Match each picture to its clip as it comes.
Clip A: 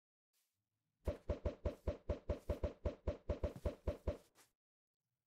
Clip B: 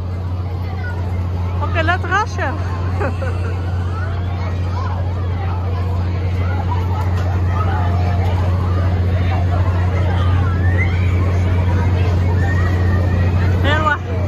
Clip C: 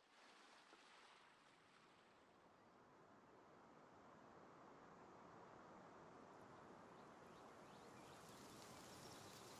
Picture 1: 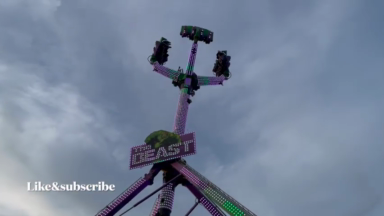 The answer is B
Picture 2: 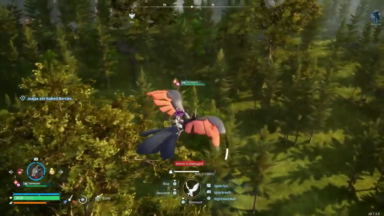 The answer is C